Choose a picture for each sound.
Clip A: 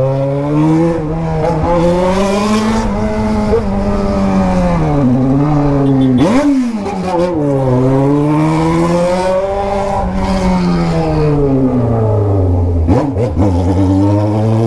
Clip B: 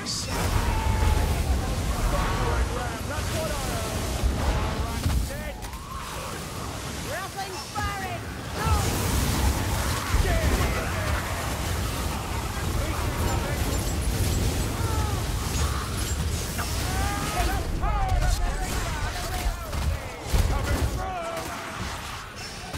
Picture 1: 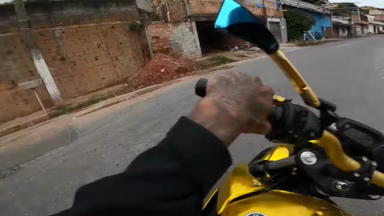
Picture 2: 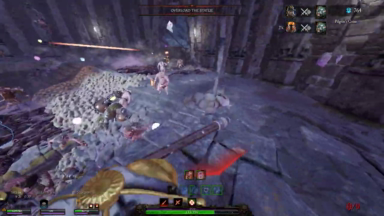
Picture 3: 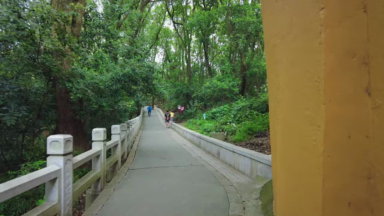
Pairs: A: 1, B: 2